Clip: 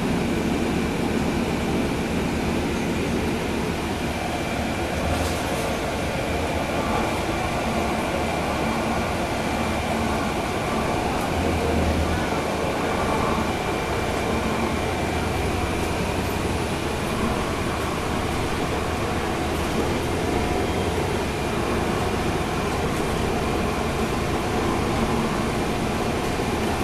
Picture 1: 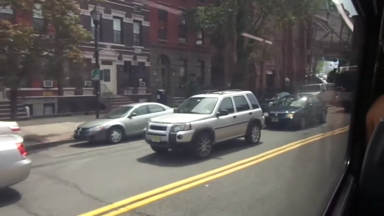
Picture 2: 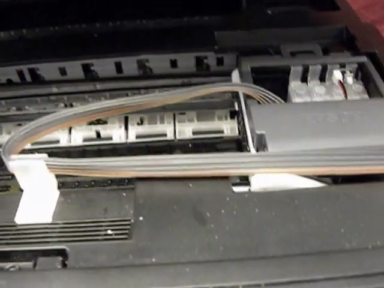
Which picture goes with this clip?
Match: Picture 1